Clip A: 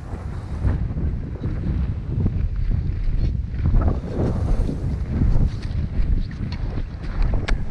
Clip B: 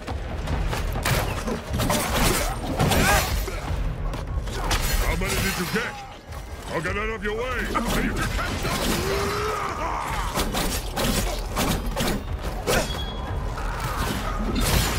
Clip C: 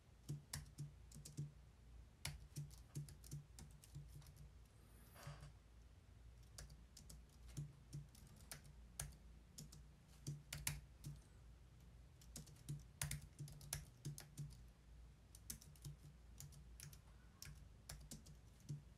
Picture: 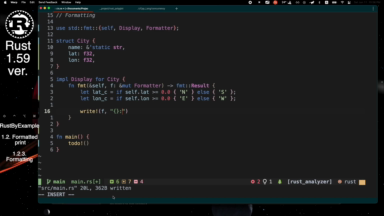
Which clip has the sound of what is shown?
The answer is C